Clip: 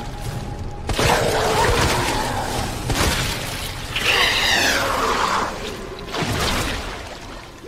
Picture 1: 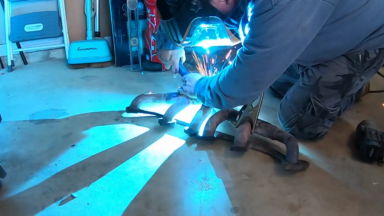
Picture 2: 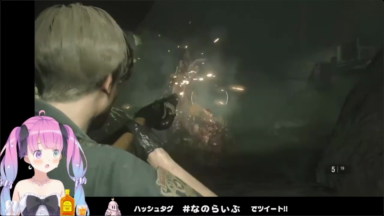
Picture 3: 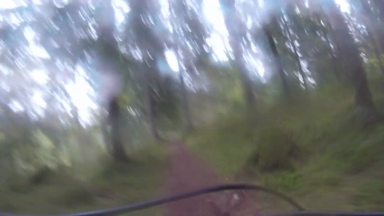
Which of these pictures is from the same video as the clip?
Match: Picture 2